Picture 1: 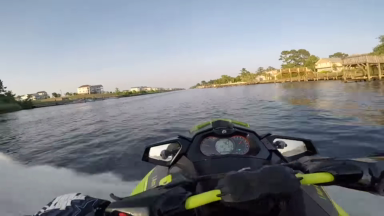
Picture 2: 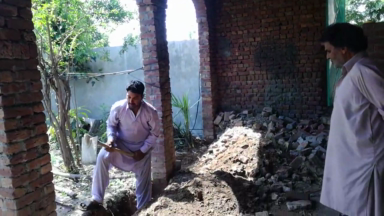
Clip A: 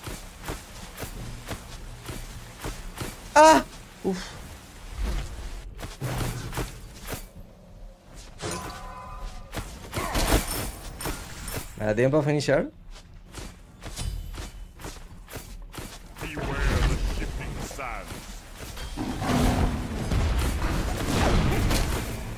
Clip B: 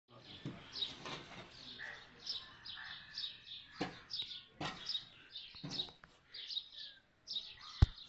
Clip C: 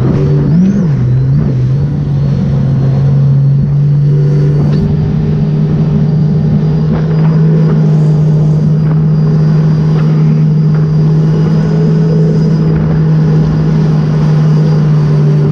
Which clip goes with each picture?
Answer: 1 C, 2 B